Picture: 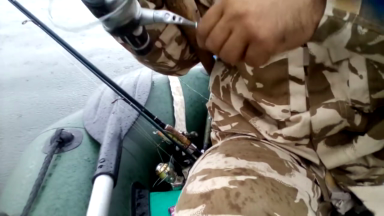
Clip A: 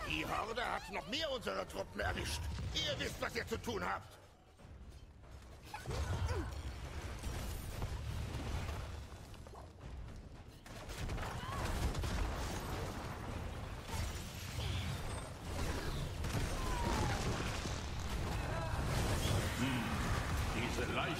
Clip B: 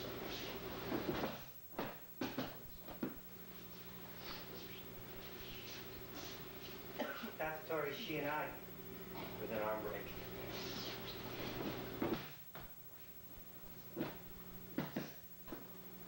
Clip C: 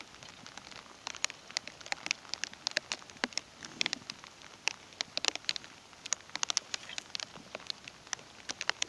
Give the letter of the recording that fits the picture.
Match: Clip C